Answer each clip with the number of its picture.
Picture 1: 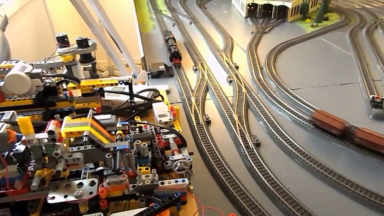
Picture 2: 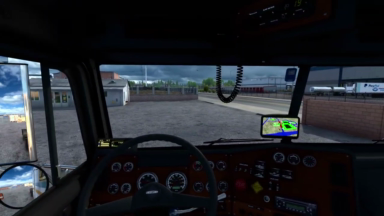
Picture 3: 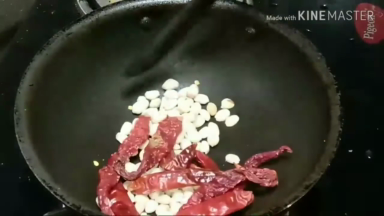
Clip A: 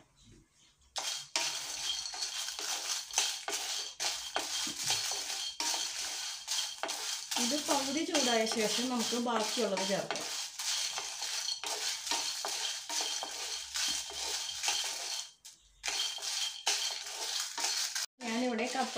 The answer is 3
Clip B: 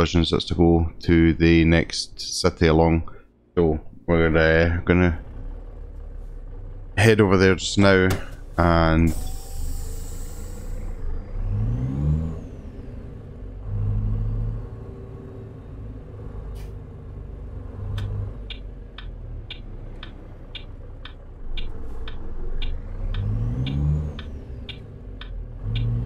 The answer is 2